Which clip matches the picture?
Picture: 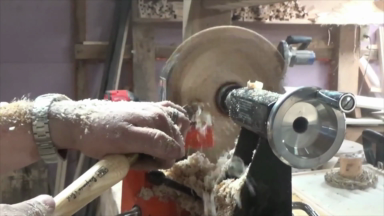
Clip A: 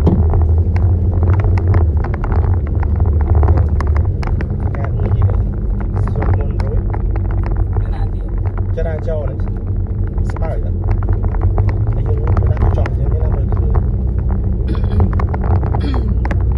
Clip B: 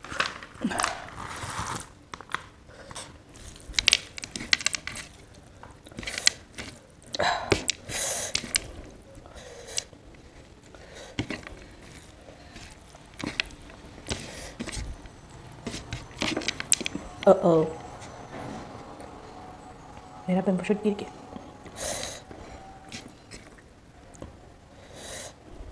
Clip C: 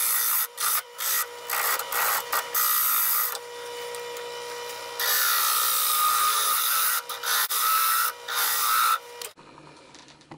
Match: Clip C